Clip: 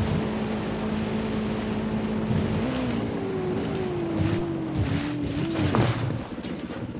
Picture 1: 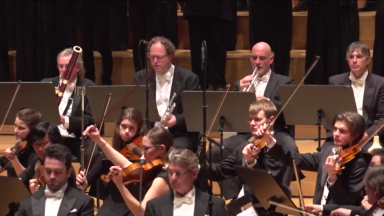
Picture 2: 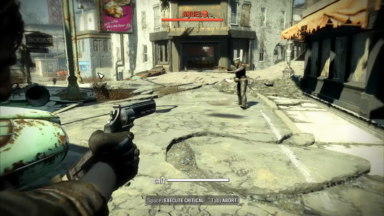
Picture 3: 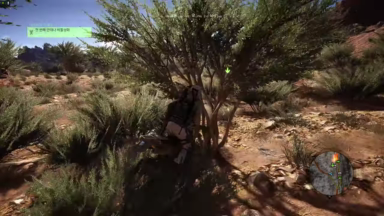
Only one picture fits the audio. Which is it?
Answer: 3